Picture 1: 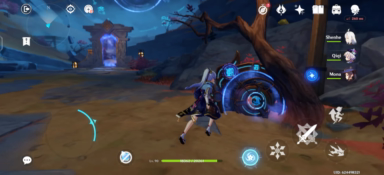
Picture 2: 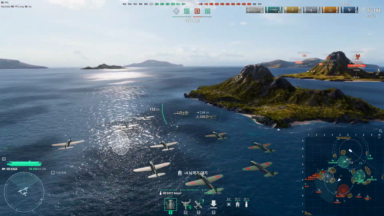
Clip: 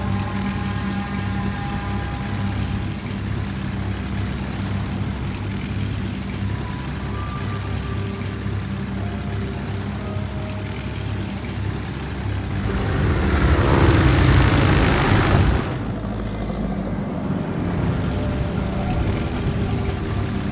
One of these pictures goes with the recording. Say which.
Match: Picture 2